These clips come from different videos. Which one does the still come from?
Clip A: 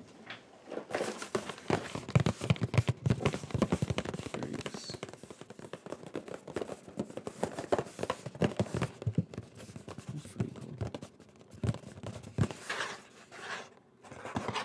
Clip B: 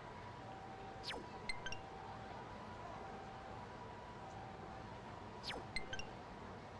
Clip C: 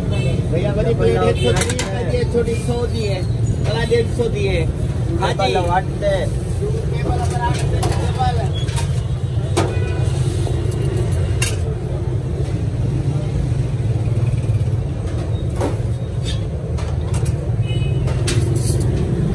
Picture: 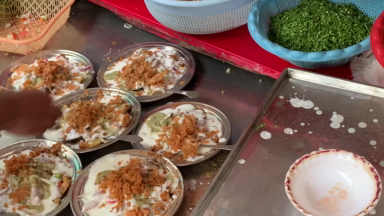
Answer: C